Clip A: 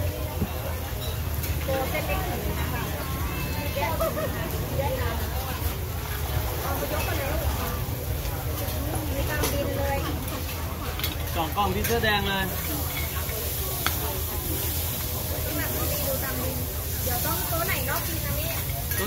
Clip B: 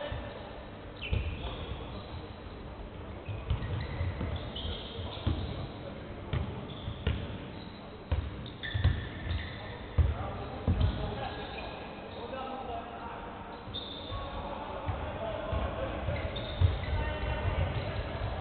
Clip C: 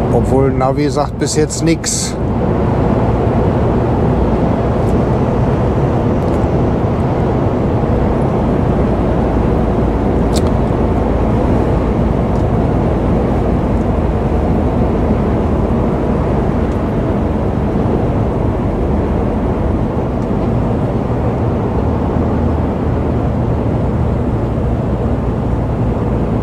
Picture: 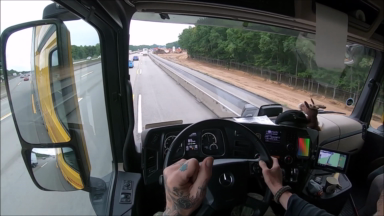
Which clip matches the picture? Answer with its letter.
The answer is C